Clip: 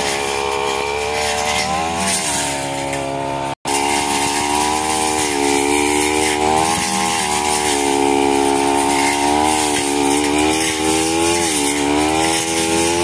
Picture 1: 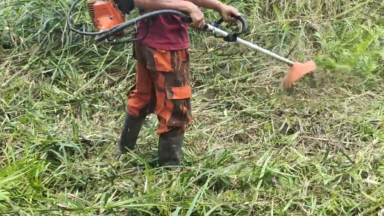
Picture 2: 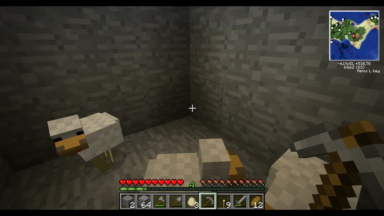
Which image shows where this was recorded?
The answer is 1